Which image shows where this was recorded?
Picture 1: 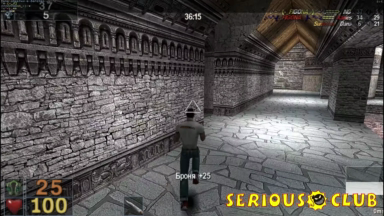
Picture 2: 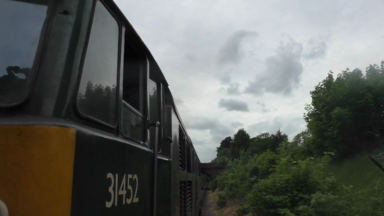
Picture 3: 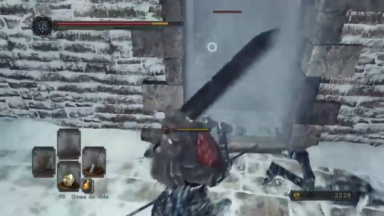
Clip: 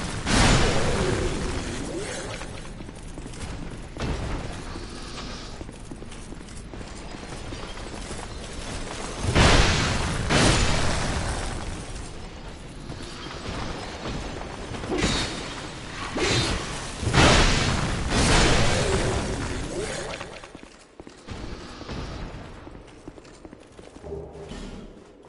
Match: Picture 3